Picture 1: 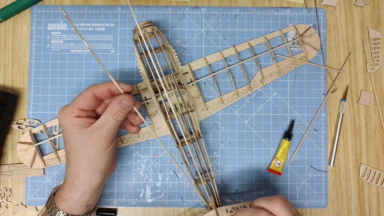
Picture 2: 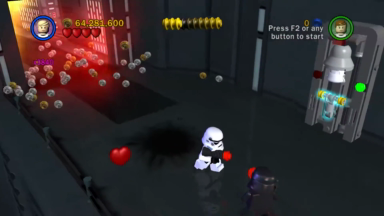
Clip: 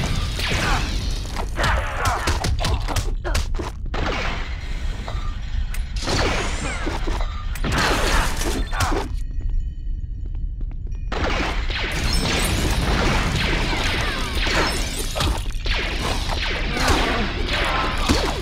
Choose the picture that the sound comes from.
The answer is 2